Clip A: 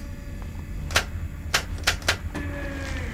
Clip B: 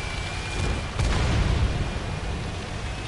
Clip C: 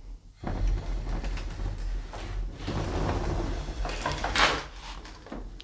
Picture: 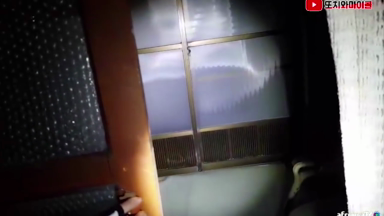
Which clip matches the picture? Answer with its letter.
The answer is C